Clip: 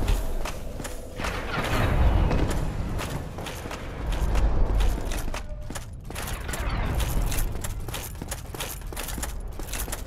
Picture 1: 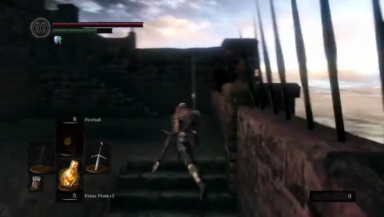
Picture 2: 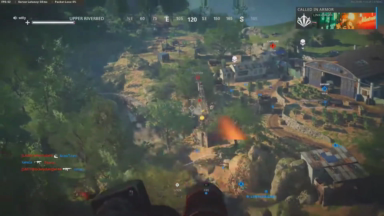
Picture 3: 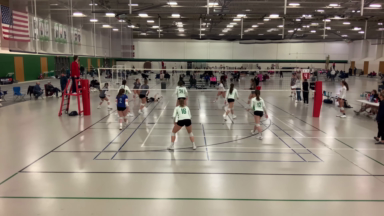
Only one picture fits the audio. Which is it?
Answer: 1